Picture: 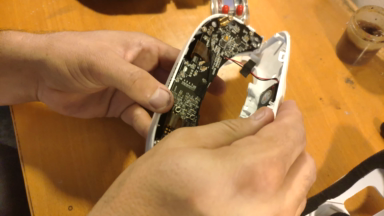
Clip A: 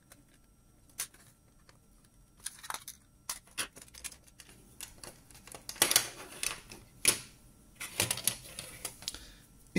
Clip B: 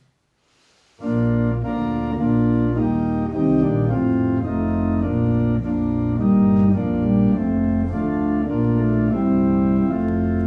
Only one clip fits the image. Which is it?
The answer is A